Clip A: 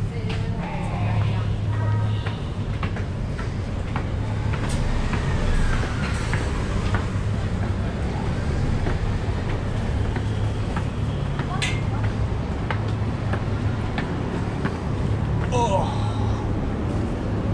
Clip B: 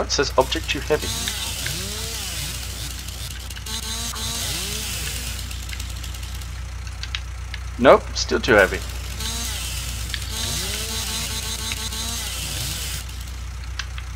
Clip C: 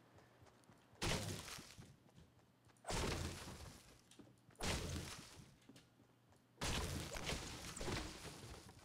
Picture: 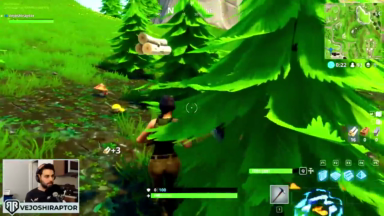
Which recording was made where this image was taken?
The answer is C